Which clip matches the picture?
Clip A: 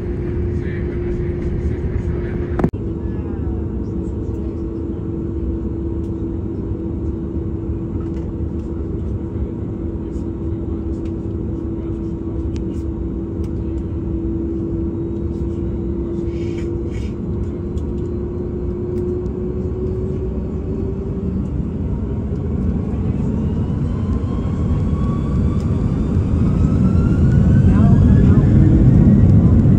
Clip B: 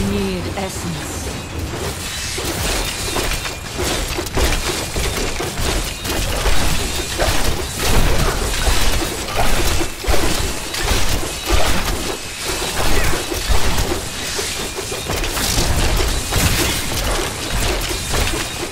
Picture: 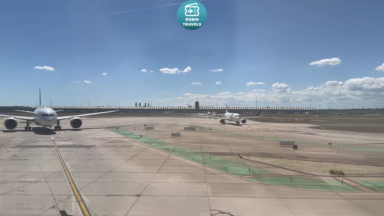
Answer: A